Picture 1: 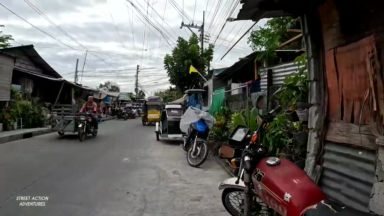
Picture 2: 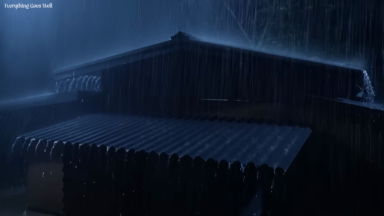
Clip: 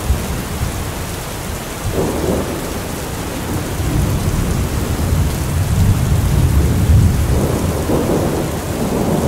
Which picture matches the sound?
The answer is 2